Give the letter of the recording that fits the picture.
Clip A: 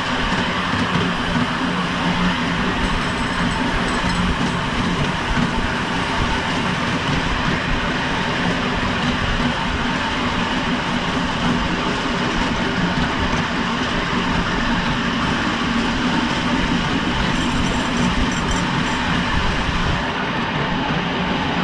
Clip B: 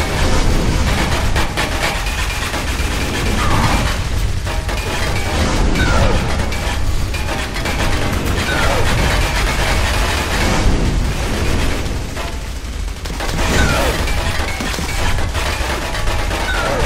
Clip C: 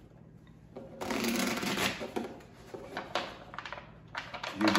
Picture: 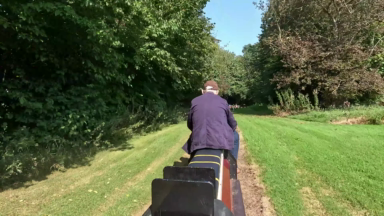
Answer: A